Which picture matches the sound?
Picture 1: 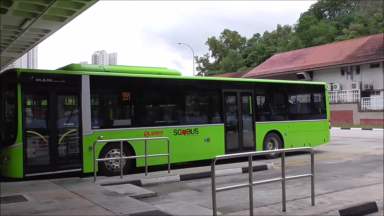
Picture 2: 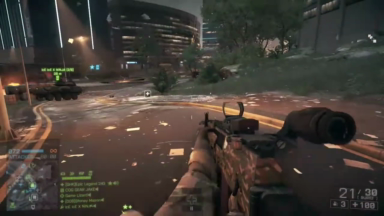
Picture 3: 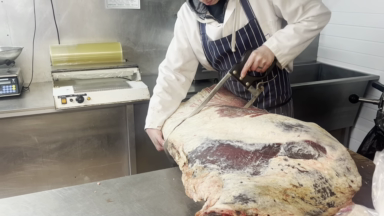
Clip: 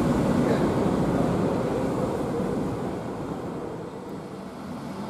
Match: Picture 1